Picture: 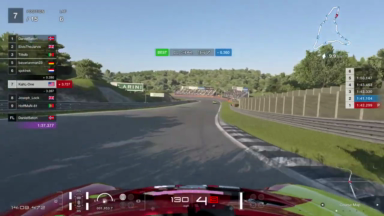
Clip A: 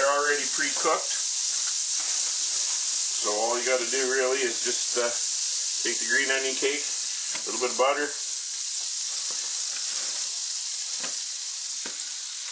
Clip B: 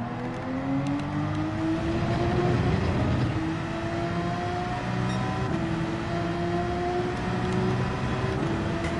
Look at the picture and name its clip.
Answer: B